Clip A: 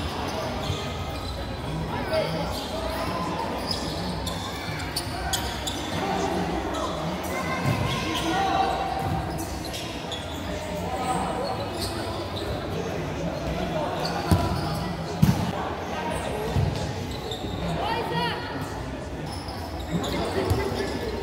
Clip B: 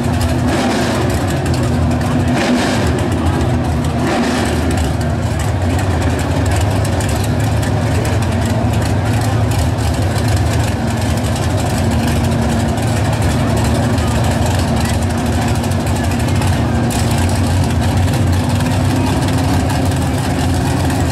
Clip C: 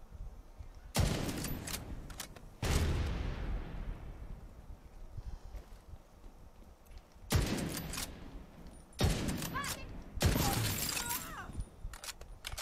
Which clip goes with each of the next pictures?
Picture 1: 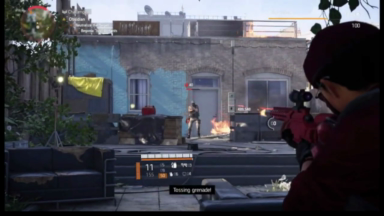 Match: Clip C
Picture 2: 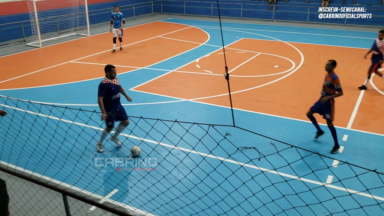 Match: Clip A